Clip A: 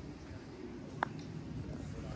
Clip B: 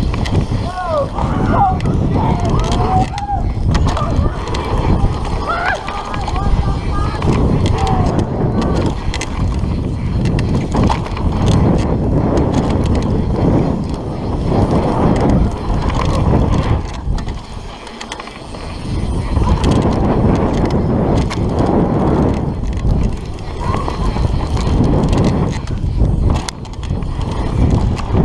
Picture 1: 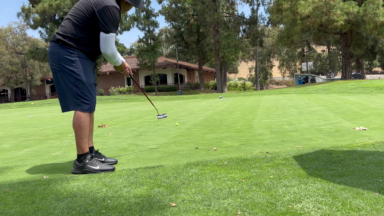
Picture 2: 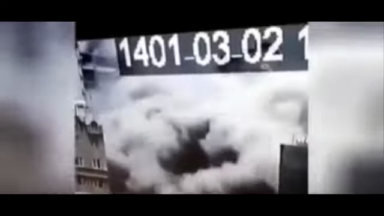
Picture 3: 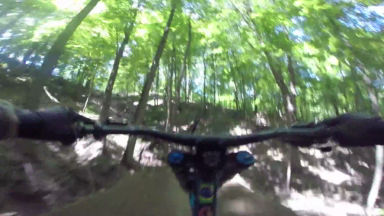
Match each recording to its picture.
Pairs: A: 1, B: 3